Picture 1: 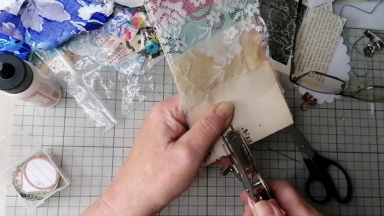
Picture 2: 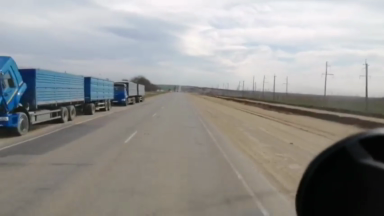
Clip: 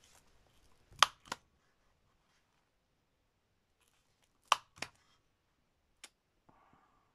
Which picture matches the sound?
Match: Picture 1